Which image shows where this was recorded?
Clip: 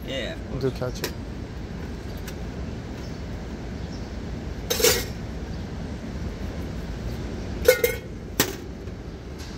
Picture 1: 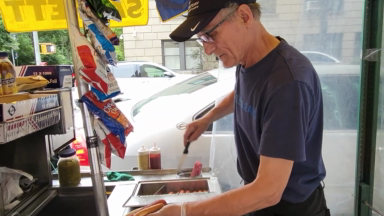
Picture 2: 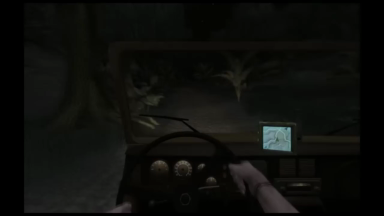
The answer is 1